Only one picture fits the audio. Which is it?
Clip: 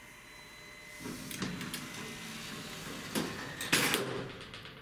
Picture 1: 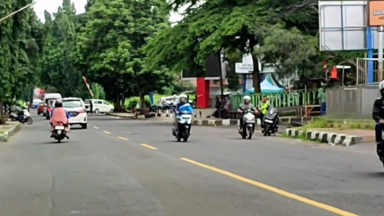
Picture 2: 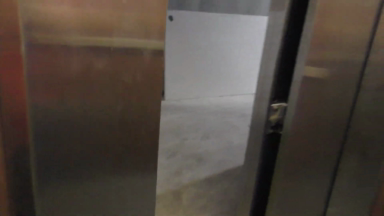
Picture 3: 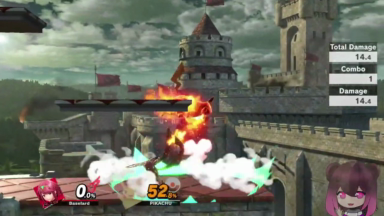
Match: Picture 2